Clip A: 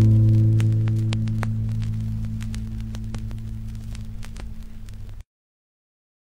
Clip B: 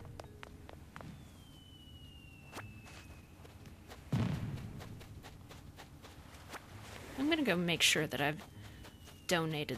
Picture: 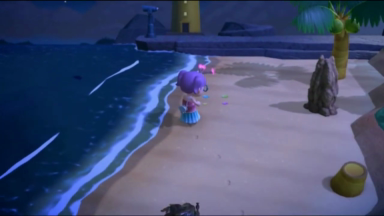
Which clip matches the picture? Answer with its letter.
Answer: B